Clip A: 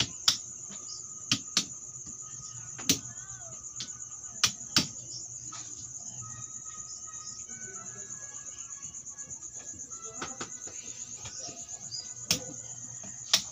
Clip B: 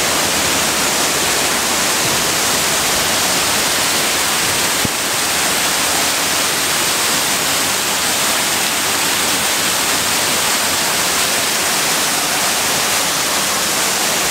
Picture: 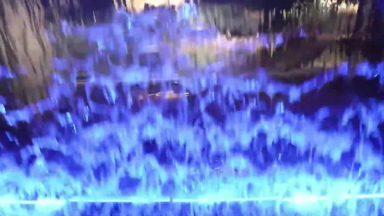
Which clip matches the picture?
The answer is B